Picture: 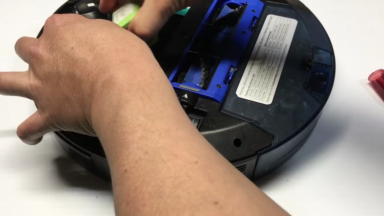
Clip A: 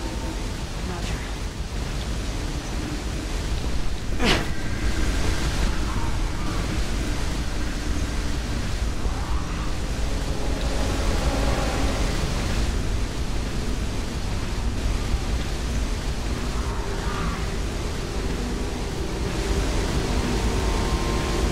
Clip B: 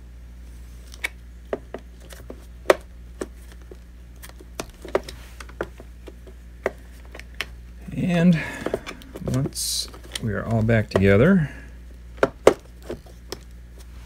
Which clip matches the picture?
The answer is B